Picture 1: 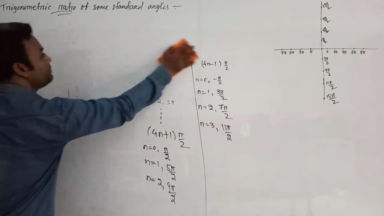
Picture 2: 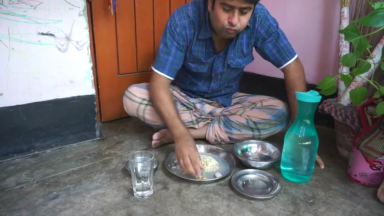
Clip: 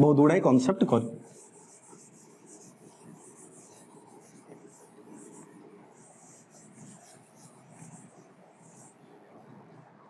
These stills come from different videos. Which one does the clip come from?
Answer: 1